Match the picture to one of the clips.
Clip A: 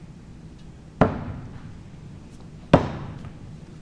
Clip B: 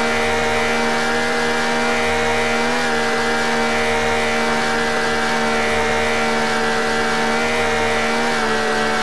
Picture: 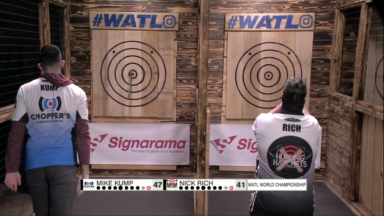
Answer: A